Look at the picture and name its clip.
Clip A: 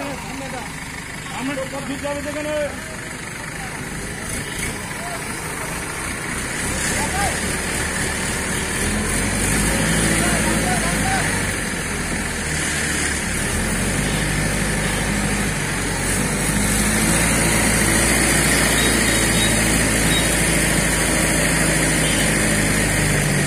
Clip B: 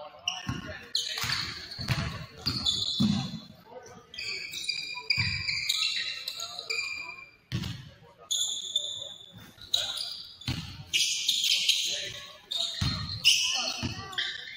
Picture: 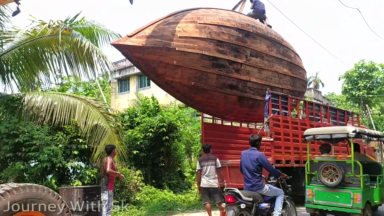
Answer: A